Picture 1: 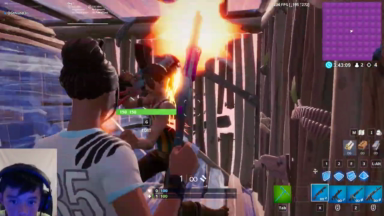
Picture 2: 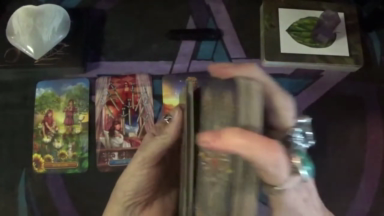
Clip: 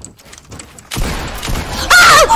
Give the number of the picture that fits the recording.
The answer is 1